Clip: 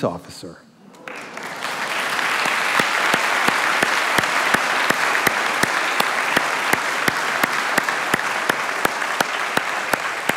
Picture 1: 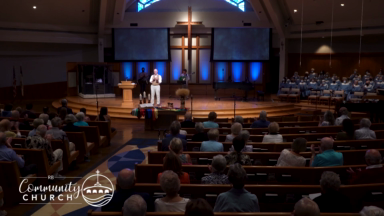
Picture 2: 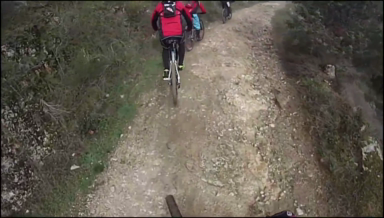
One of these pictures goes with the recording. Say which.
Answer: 1